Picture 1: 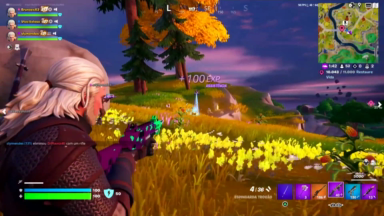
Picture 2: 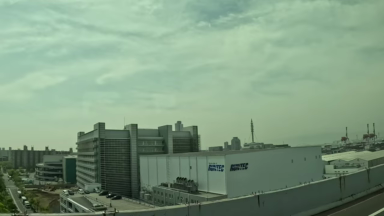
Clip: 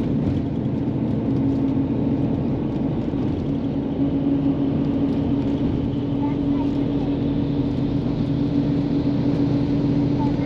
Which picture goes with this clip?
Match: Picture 2